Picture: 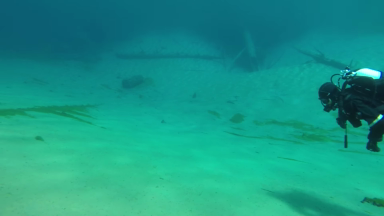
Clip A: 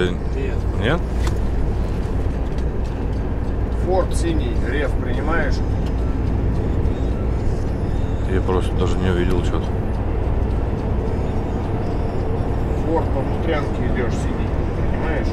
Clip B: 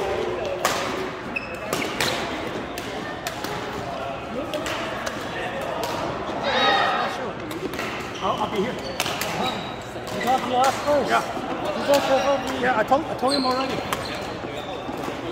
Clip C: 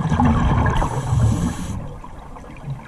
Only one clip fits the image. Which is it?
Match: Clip C